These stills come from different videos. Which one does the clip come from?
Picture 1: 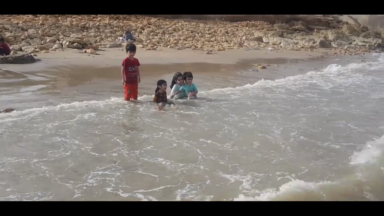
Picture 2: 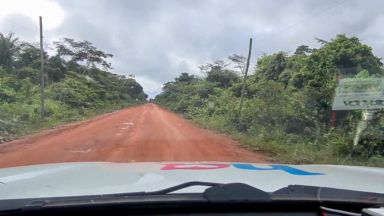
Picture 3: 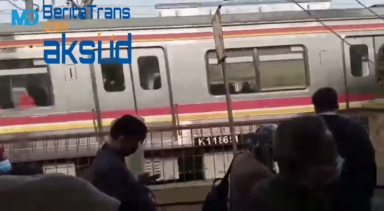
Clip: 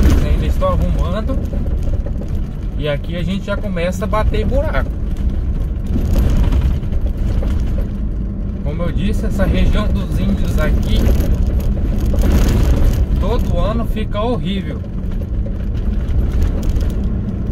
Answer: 2